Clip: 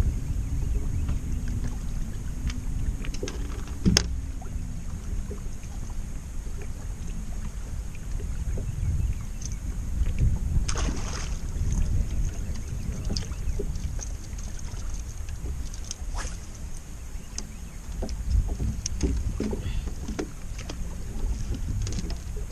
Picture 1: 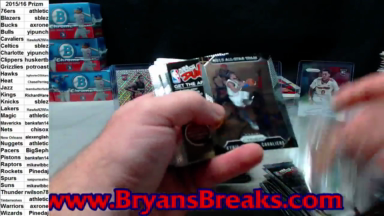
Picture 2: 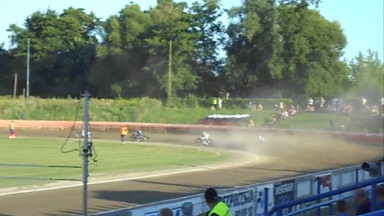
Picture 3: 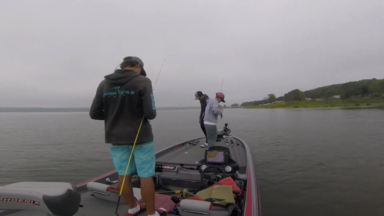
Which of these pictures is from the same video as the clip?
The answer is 3